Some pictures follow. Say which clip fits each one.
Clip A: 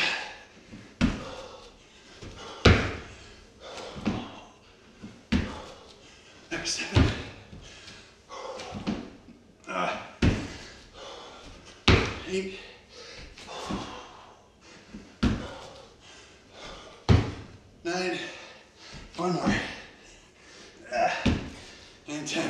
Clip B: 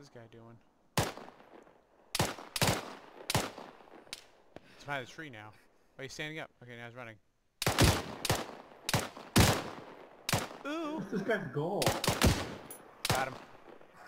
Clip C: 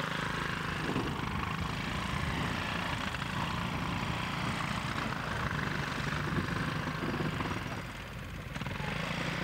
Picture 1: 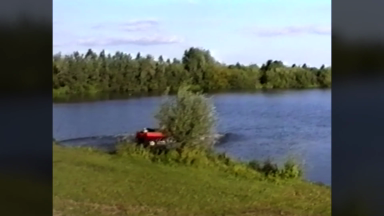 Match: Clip C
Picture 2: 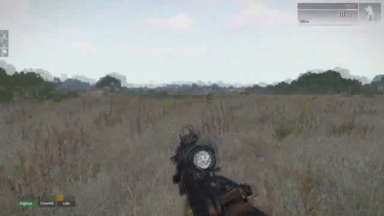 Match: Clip B